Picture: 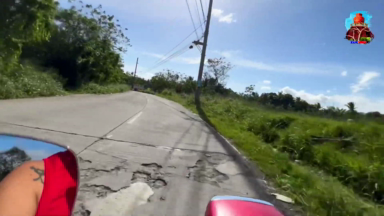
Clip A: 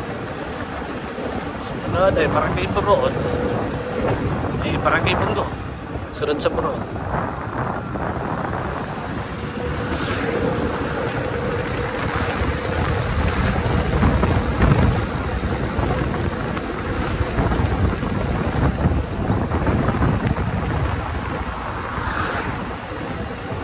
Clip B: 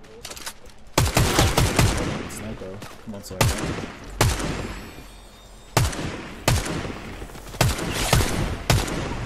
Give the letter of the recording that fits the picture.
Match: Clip A